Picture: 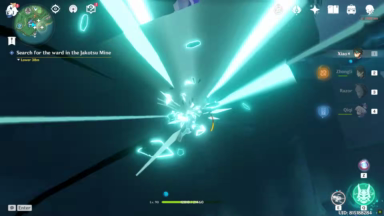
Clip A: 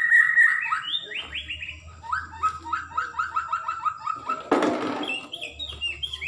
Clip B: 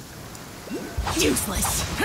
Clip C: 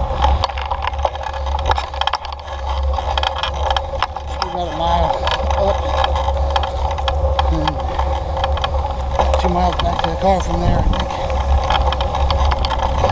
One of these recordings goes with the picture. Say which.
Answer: B